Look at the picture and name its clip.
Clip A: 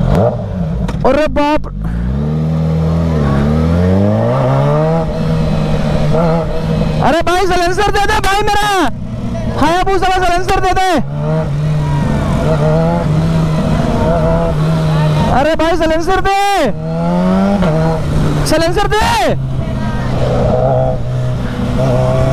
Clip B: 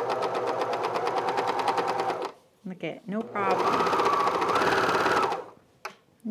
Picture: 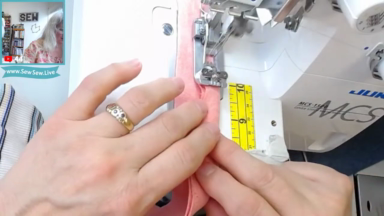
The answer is B